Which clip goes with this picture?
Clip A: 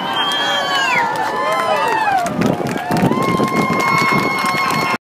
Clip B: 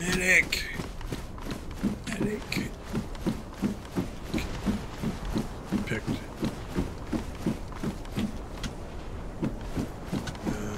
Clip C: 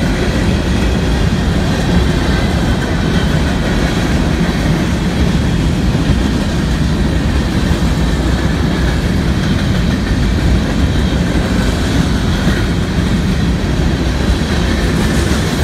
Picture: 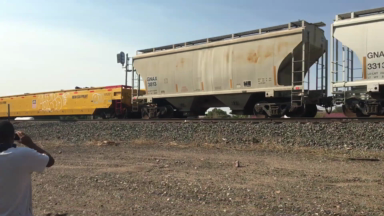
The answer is C